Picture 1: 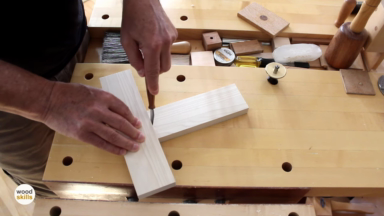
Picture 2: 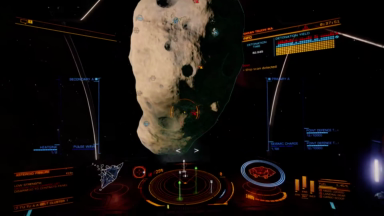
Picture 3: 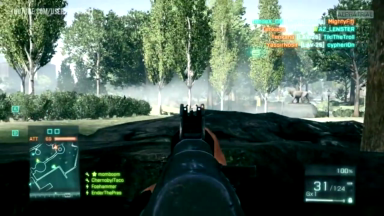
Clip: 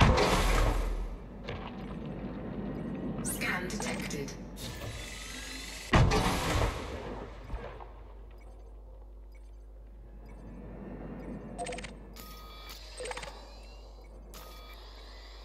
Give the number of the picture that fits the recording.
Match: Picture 2